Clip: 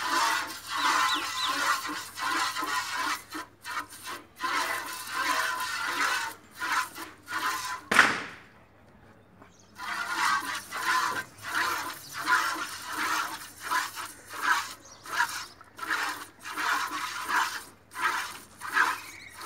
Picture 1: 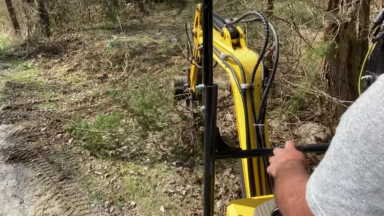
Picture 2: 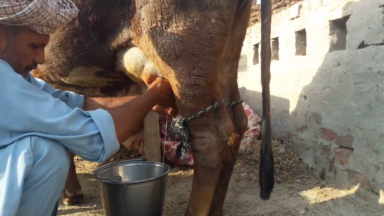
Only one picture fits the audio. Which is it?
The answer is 2